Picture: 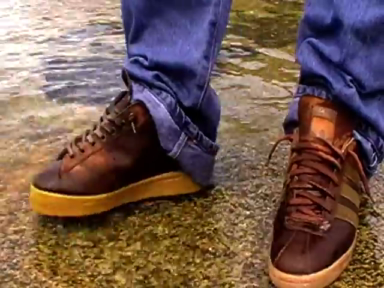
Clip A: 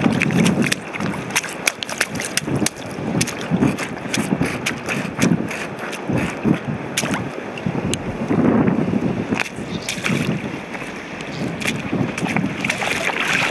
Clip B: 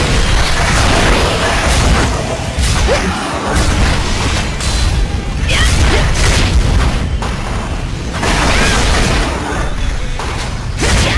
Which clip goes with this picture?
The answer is A